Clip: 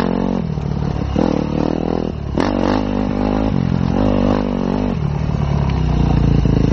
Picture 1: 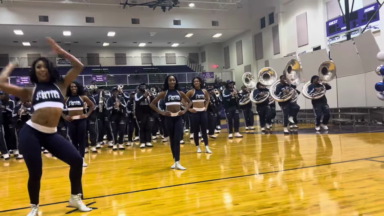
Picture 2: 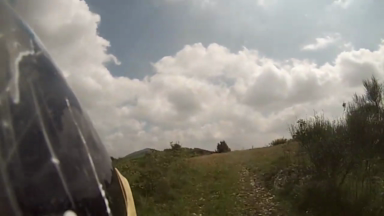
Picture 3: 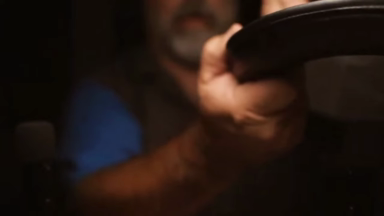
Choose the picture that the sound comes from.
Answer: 2